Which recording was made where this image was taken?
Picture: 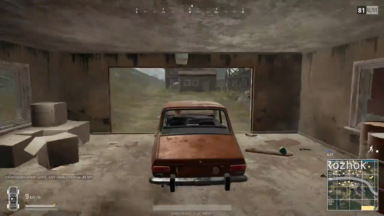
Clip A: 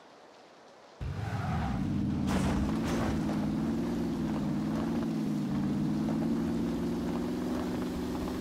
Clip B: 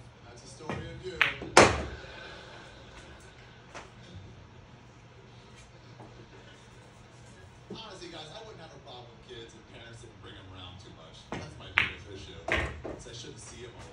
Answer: A